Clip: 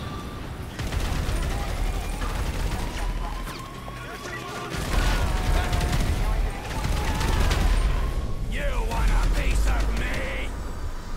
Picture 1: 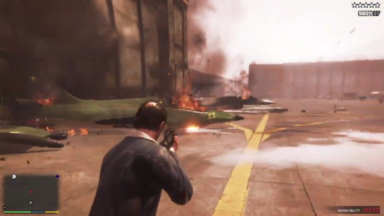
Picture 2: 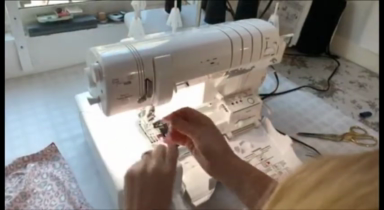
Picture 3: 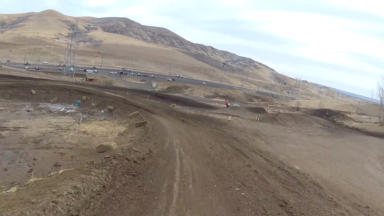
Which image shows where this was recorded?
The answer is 1